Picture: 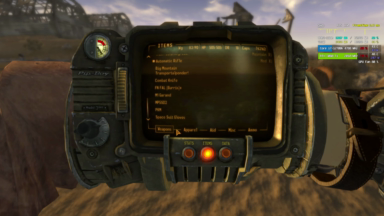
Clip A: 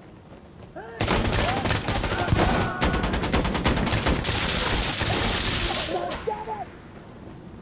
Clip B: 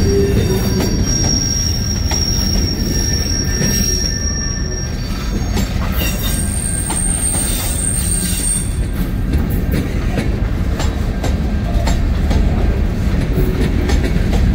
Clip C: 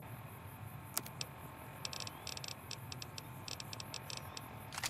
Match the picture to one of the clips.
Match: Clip C